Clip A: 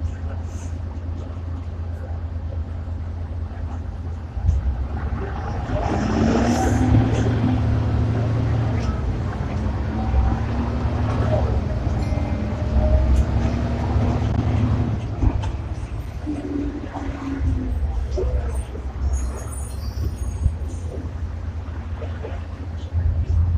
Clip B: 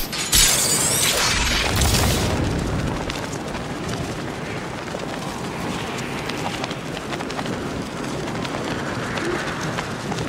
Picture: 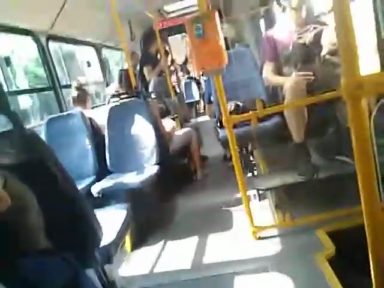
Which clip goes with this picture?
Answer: A